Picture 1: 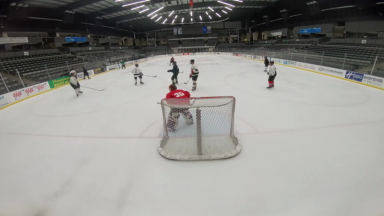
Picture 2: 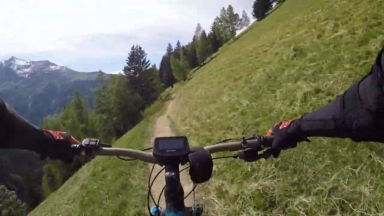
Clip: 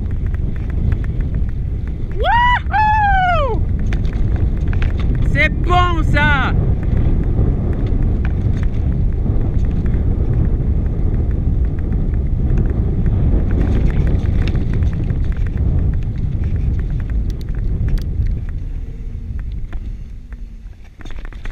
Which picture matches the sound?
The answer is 2